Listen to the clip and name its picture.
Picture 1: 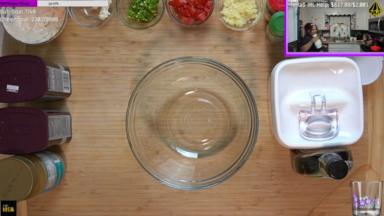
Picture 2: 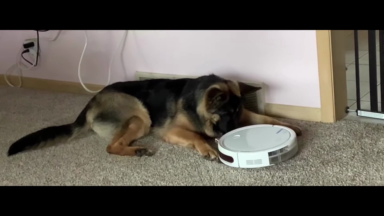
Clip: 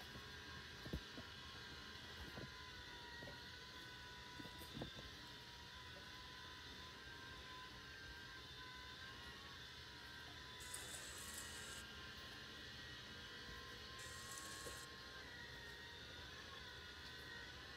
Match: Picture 2